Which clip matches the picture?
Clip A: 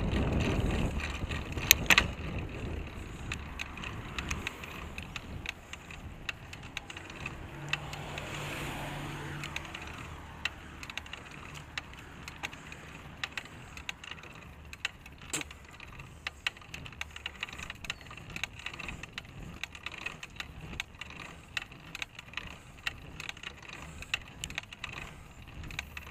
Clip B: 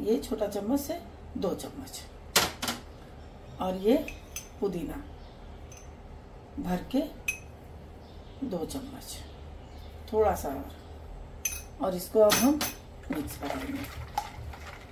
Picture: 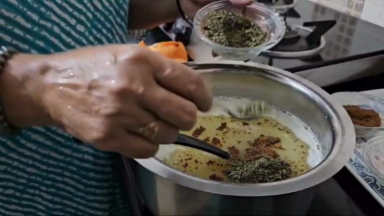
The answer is B